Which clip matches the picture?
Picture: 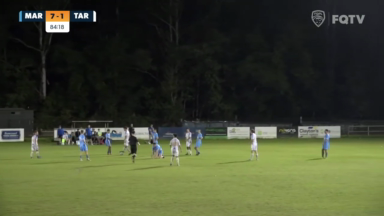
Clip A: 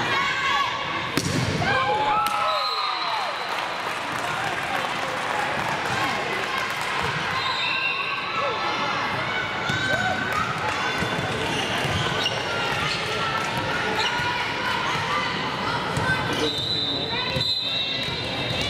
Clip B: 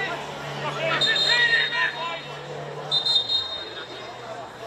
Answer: B